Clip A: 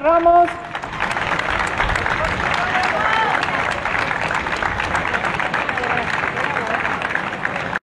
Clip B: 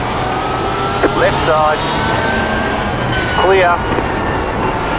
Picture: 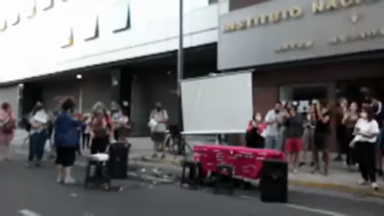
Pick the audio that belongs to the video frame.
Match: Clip A